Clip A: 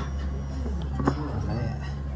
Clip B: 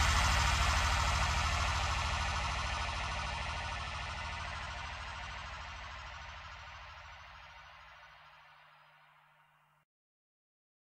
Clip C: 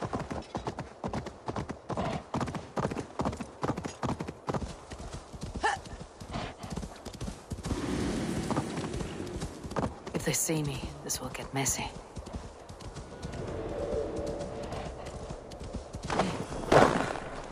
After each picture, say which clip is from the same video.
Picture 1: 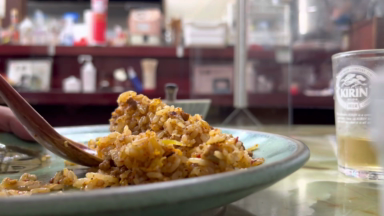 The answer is A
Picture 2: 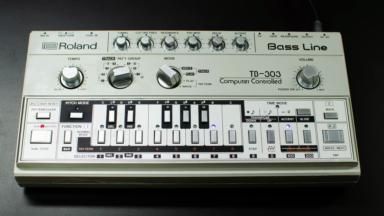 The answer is B